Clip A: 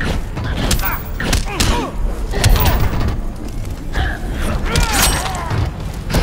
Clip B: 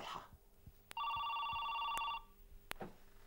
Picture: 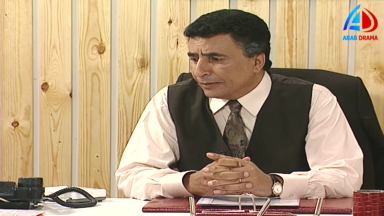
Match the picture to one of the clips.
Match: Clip B